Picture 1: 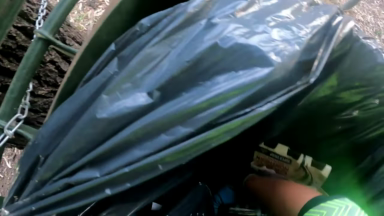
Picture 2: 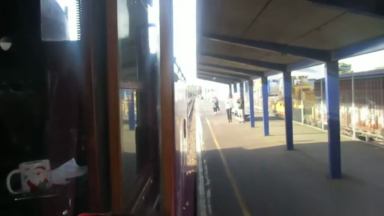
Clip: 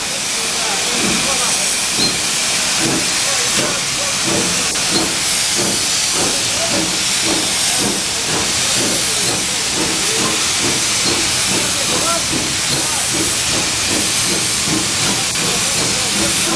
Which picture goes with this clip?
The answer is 2